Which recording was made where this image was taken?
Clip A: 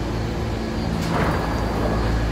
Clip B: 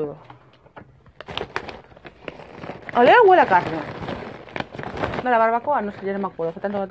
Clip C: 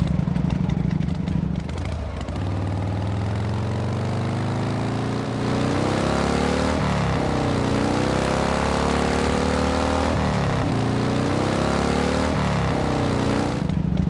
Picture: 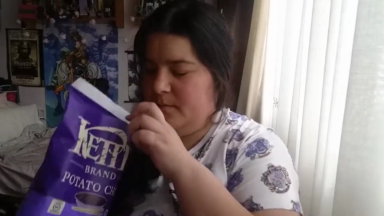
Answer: B